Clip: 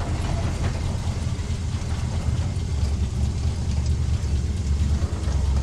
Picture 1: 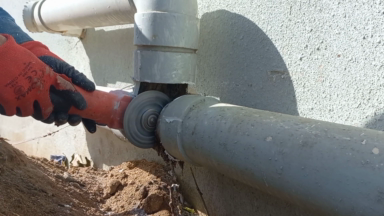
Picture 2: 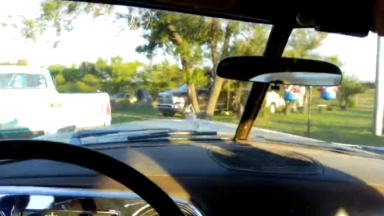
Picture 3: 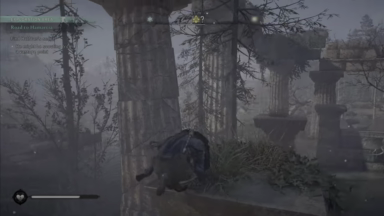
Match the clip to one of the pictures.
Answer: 2